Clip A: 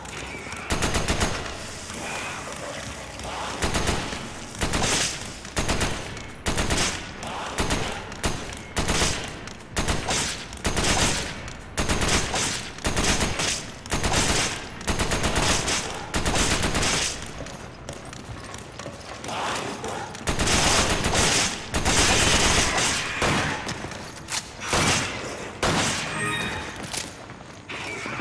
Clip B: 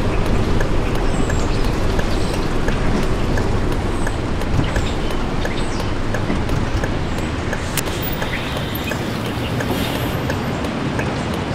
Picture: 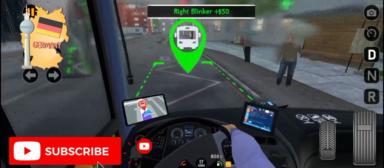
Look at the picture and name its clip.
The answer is B